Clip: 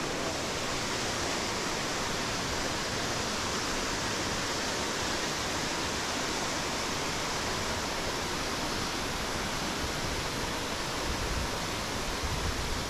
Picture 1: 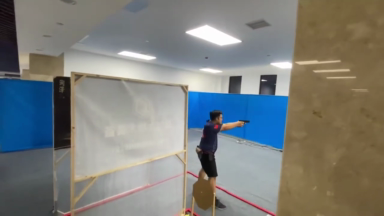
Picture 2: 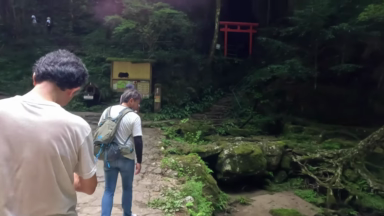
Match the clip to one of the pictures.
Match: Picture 2